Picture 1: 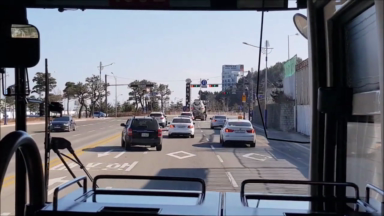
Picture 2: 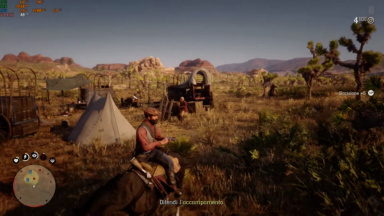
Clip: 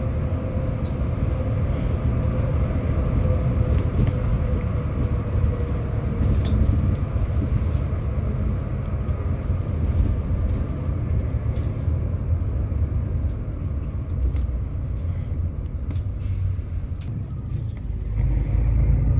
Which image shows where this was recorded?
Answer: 1